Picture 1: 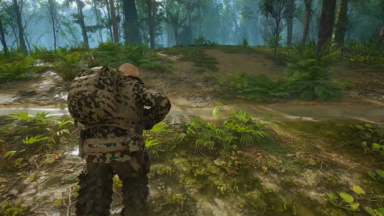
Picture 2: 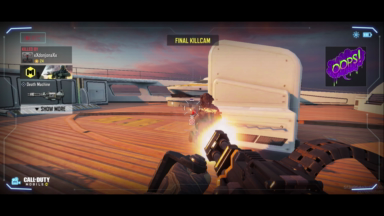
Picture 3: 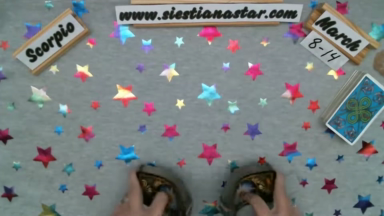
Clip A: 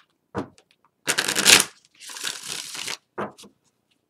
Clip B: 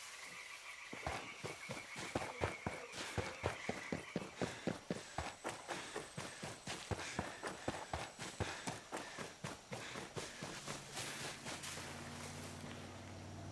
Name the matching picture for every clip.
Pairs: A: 3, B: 1